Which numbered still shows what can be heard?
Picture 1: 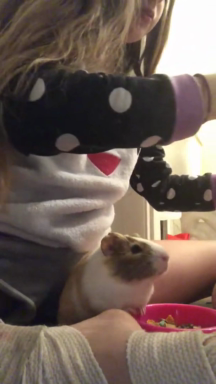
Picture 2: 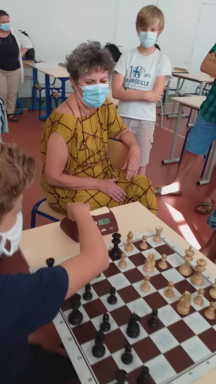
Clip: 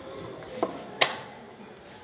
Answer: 2